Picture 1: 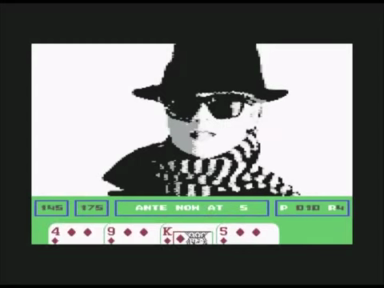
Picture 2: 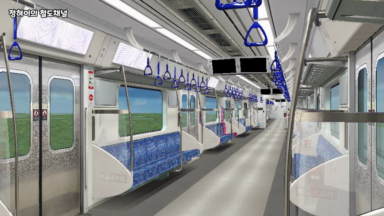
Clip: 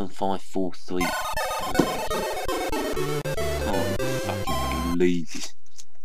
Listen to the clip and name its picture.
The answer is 1